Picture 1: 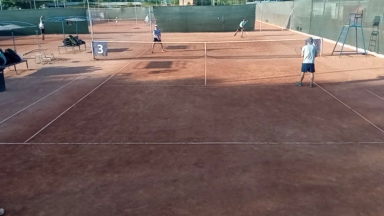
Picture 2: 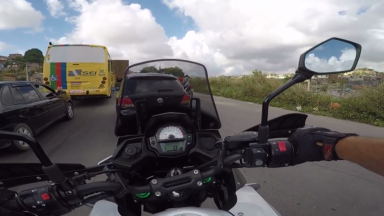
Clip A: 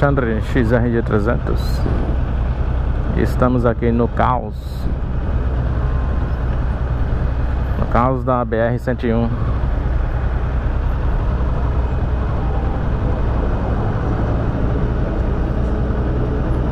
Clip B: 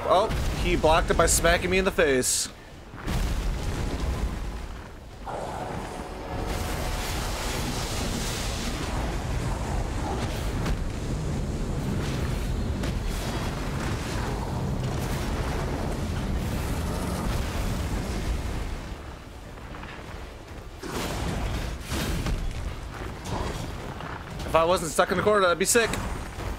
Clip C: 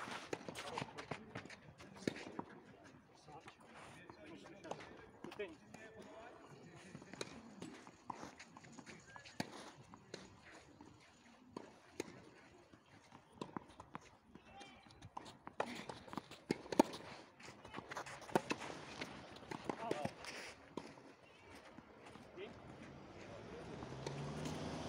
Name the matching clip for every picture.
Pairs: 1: C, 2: A